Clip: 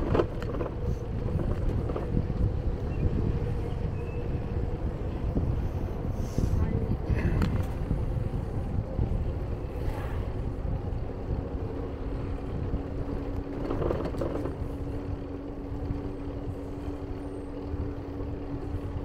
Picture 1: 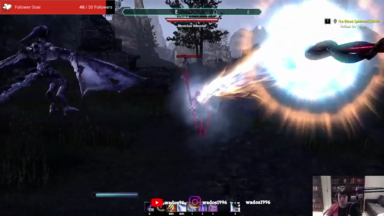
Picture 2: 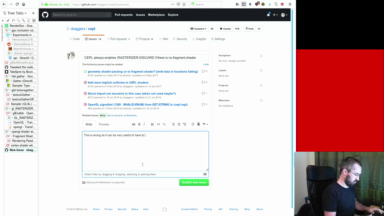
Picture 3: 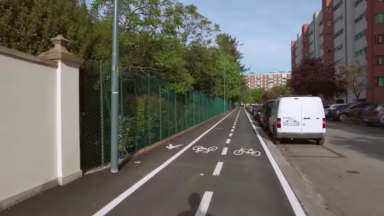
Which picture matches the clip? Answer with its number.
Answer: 3